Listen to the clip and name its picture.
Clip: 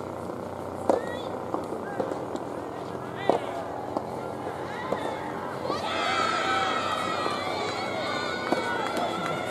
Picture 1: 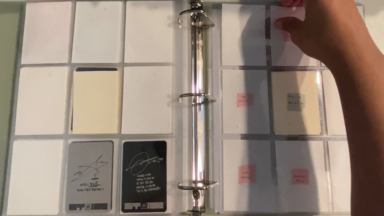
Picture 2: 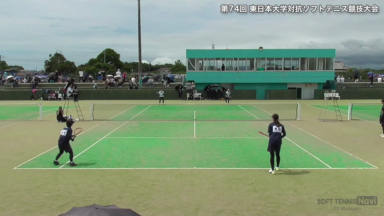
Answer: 2